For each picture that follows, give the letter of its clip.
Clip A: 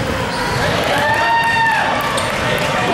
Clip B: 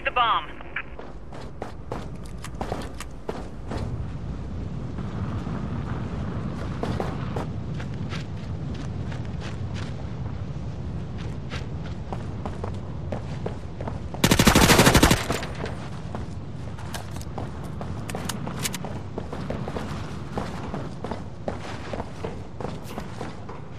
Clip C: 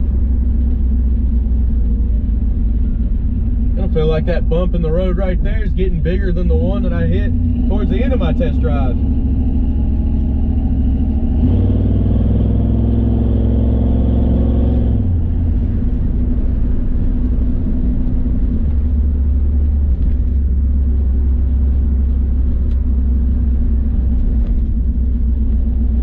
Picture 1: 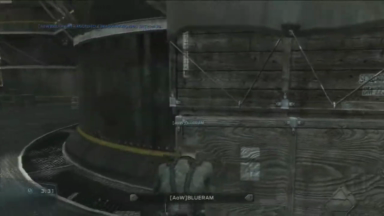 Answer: B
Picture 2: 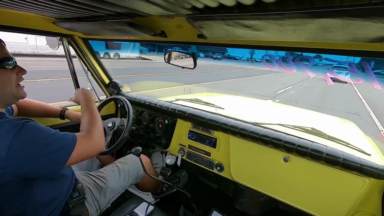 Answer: C